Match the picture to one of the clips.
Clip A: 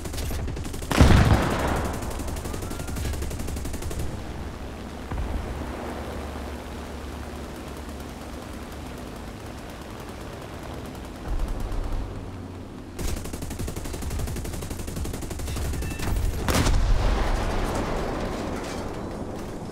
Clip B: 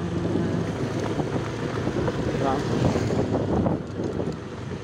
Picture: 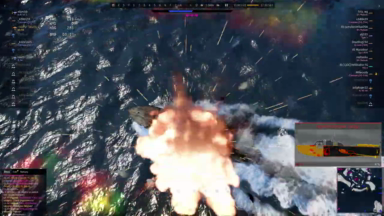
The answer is A